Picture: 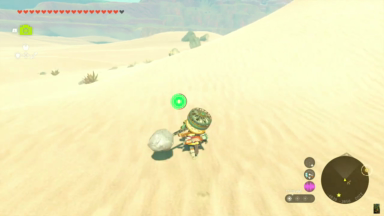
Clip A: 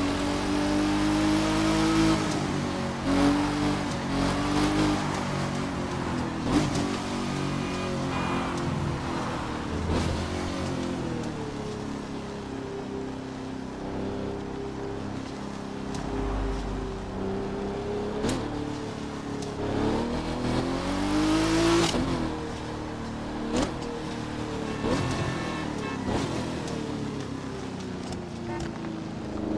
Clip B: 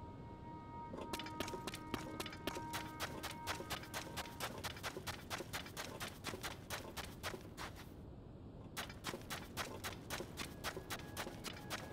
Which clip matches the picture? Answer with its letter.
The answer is B